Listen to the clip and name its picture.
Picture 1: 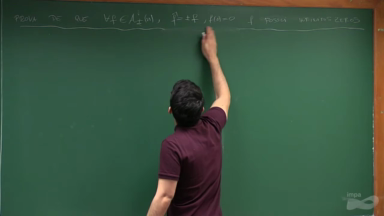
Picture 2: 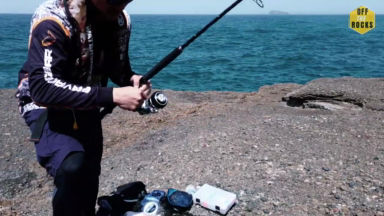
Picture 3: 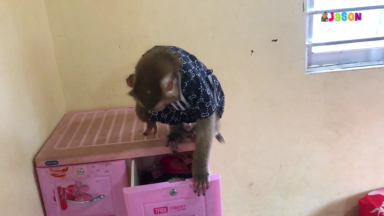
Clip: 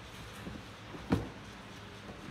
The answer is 3